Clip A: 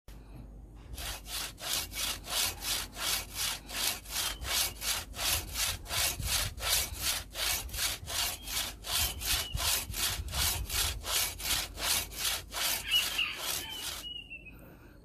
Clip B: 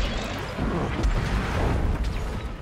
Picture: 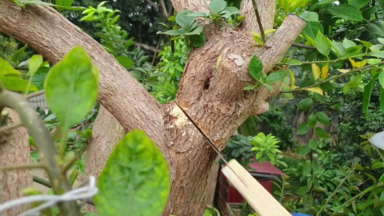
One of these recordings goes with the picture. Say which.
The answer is A